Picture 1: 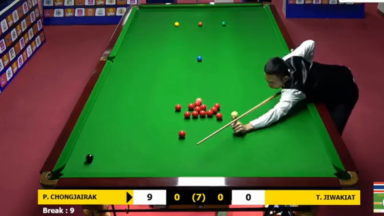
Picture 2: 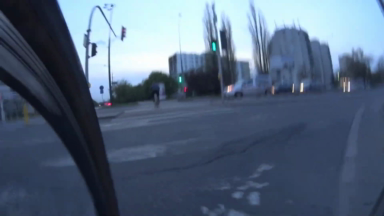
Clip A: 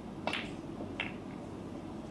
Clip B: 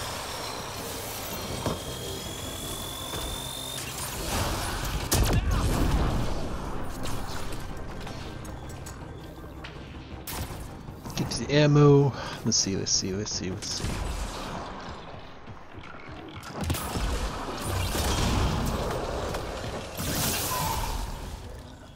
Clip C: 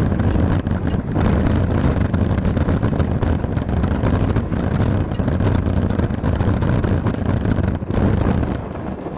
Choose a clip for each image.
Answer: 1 A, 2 C